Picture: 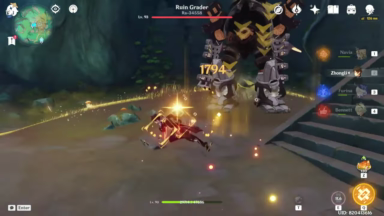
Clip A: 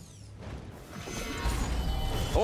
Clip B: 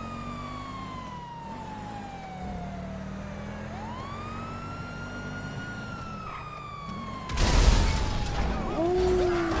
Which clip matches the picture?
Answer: A